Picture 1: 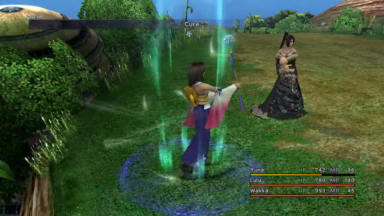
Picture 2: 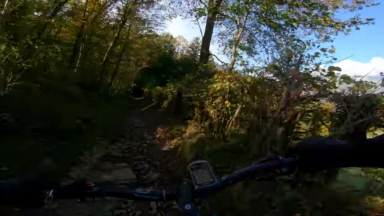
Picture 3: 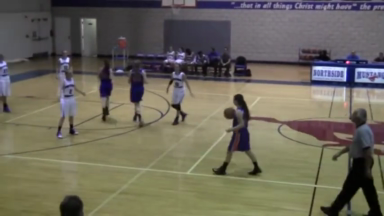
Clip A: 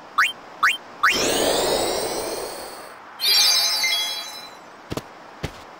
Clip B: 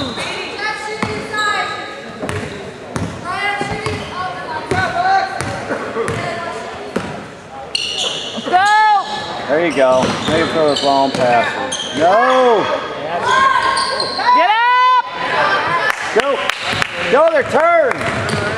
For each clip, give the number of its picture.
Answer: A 1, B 3